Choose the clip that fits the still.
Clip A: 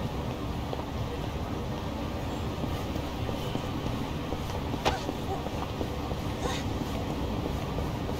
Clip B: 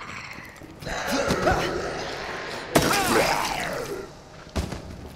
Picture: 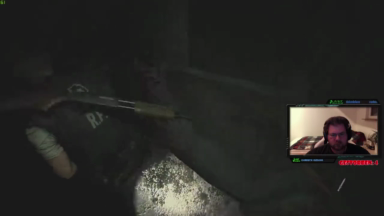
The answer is B